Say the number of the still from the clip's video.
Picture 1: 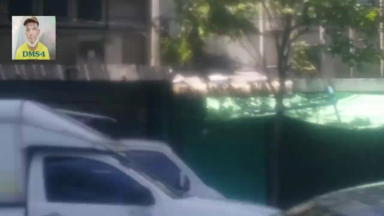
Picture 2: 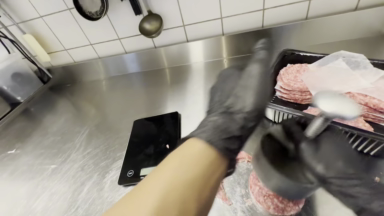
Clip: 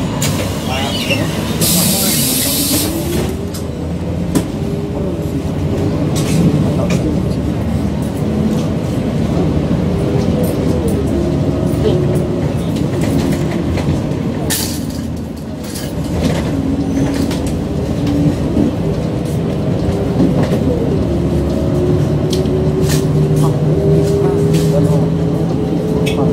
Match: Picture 1